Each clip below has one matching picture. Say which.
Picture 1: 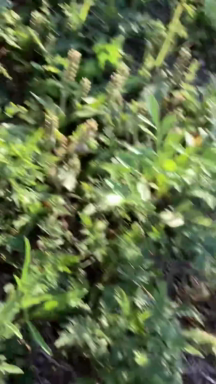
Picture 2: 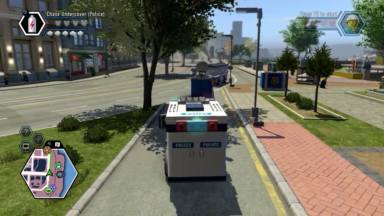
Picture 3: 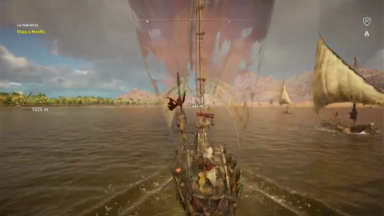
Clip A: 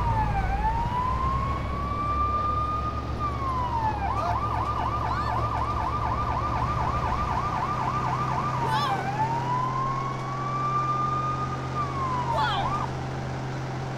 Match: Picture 2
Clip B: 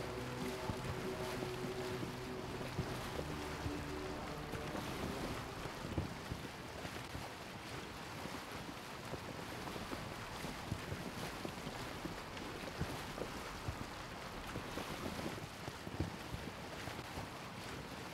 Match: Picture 3